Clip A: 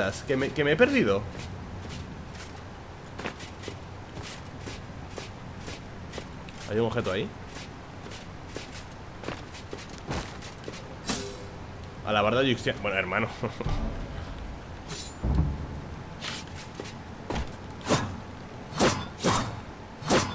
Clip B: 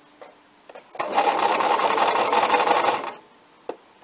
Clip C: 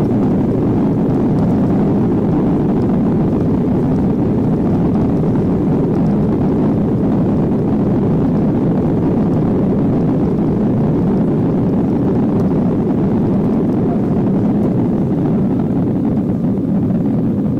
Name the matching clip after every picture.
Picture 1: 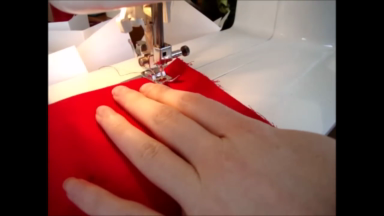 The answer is B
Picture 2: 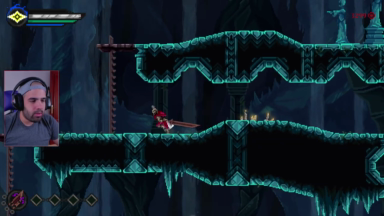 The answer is A